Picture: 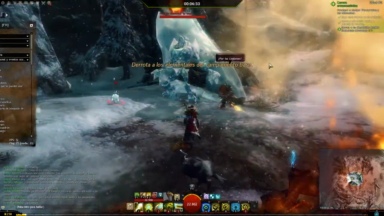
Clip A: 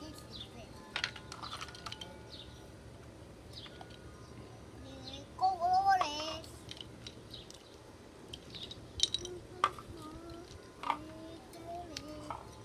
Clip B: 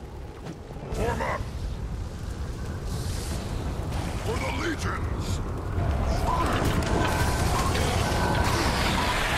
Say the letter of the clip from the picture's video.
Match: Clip B